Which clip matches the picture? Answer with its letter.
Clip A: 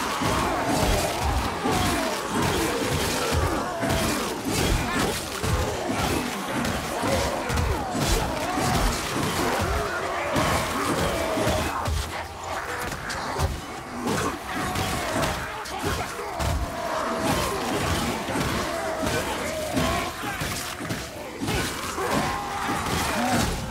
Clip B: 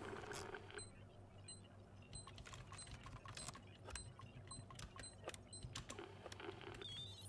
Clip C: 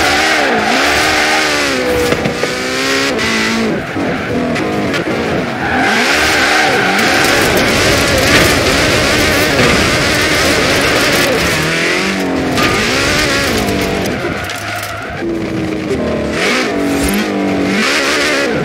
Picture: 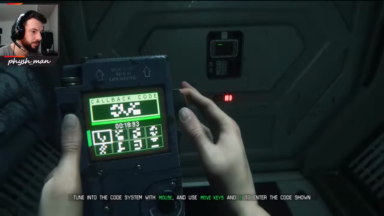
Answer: B